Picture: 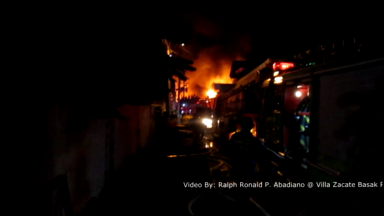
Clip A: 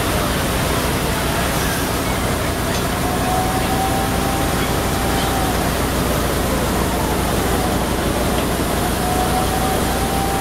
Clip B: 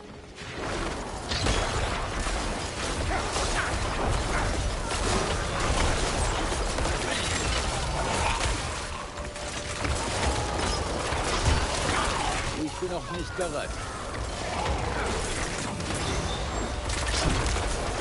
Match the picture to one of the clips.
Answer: A